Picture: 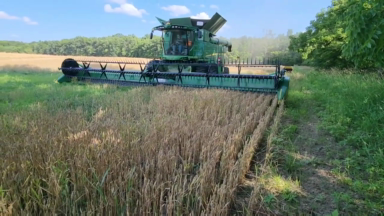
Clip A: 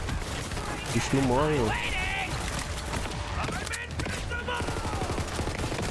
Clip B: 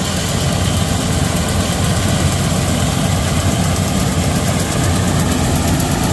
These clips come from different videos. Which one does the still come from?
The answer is B